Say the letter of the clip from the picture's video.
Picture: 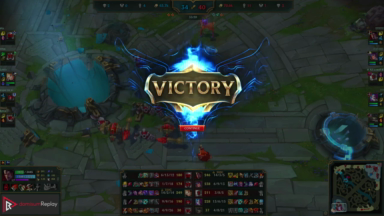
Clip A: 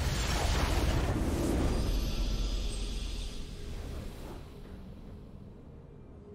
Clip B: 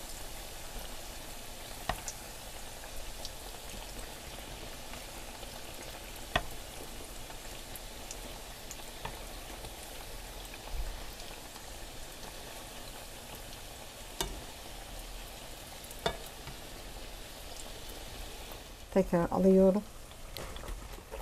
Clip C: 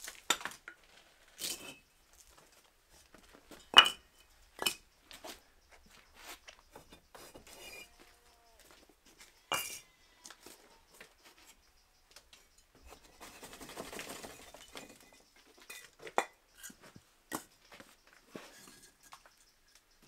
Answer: A